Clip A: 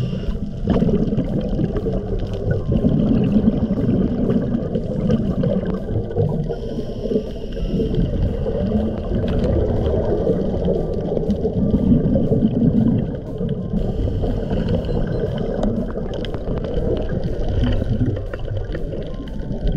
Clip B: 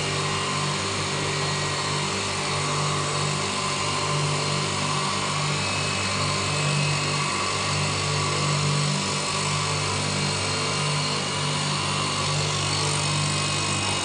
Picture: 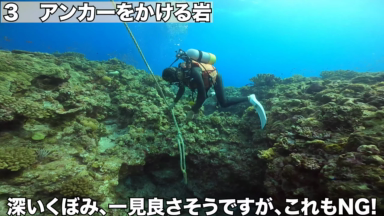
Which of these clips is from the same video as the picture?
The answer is A